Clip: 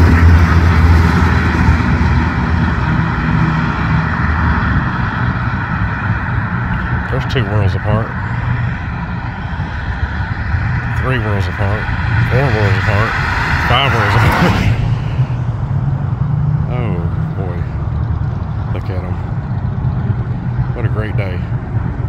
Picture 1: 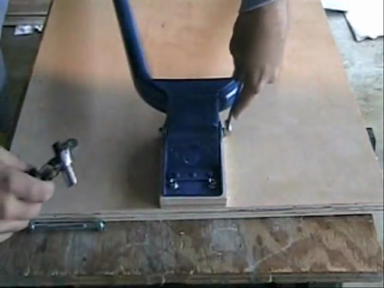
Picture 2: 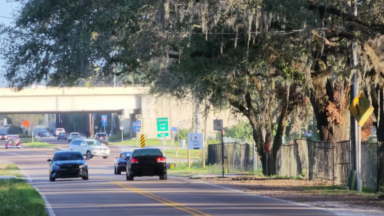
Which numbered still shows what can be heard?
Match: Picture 2